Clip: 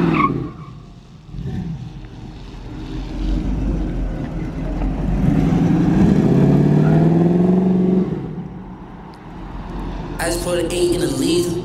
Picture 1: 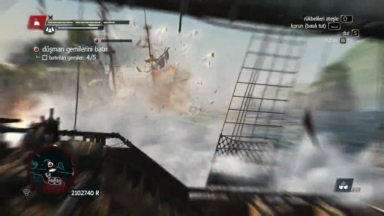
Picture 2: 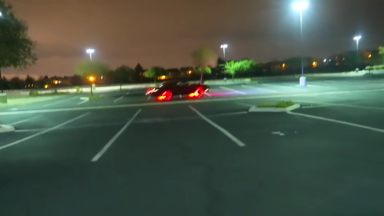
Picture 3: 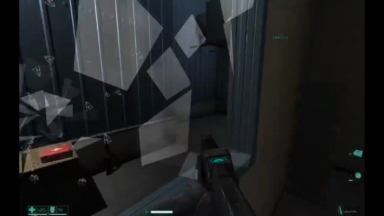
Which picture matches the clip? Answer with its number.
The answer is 2